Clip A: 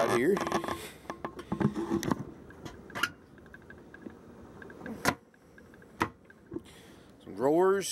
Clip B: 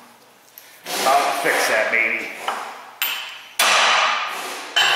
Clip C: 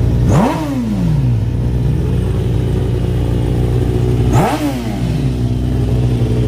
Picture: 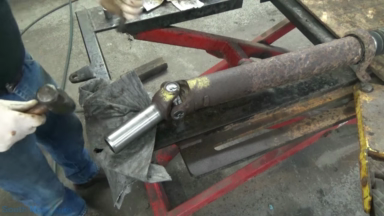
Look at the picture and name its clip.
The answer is B